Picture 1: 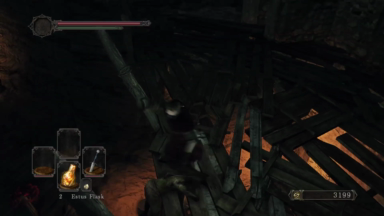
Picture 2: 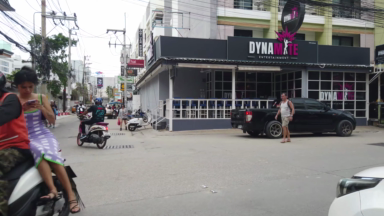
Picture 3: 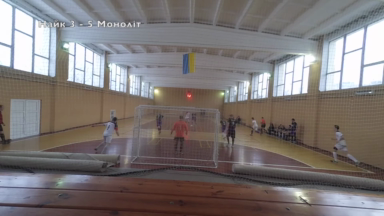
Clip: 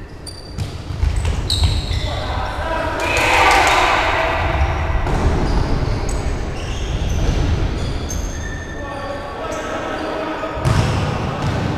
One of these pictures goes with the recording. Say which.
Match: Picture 3